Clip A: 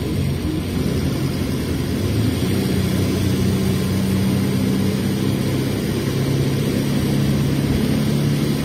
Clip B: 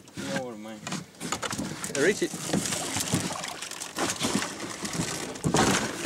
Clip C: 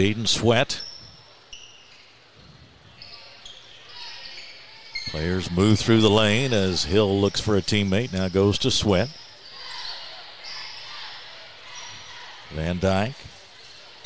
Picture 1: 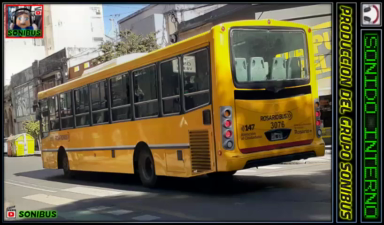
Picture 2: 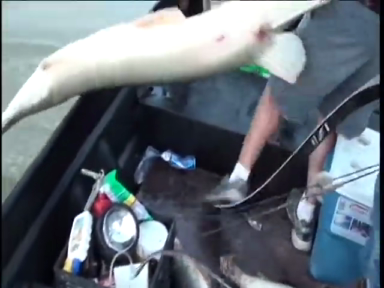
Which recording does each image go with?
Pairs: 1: A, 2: B